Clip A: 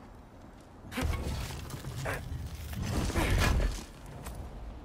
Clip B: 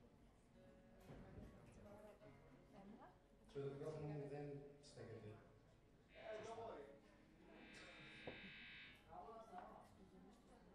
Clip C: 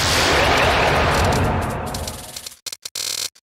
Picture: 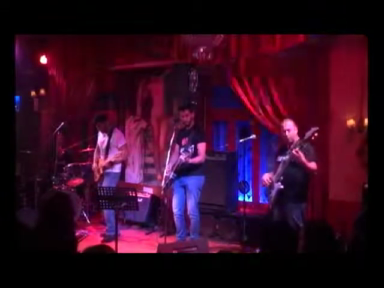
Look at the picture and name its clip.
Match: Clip B